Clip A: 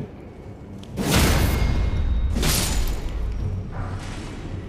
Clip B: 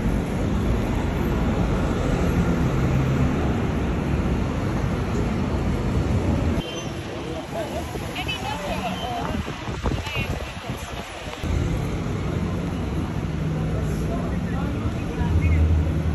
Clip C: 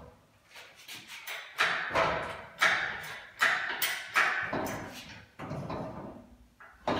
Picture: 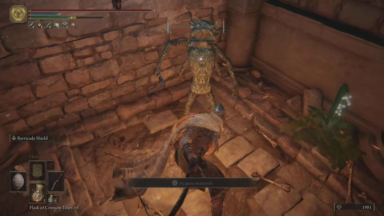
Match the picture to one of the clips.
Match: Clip A